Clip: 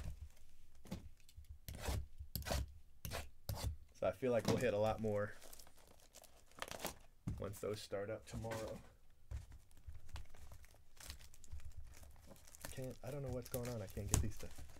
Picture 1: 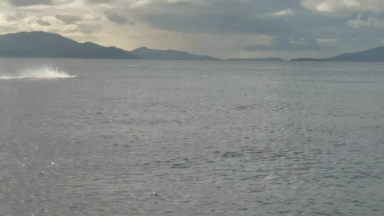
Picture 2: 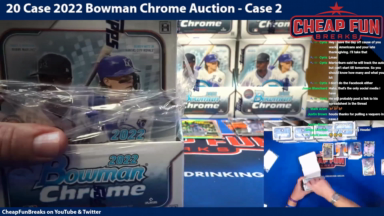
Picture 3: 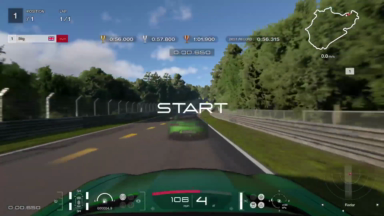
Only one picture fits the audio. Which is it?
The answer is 2